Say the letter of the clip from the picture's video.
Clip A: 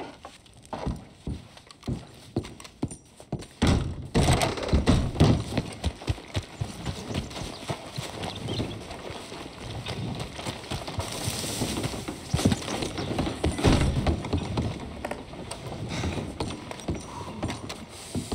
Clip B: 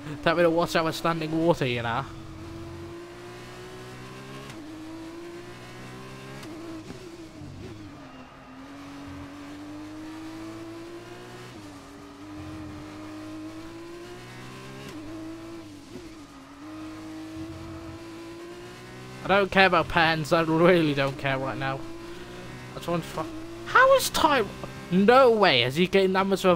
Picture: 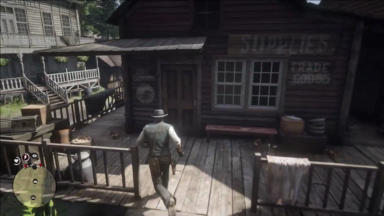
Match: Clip A